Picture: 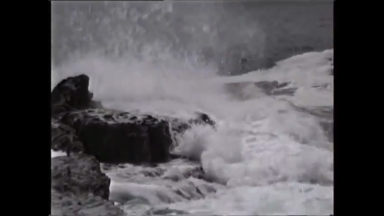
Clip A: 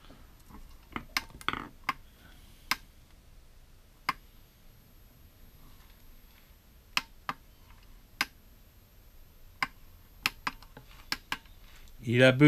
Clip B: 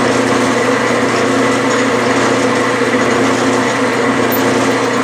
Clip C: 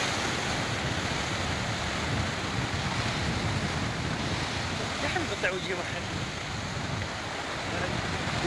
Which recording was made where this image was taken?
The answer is C